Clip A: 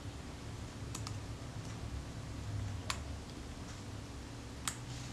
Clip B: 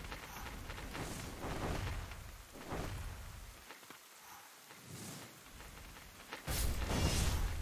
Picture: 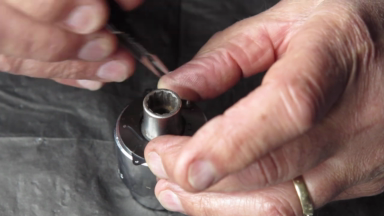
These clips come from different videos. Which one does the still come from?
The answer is A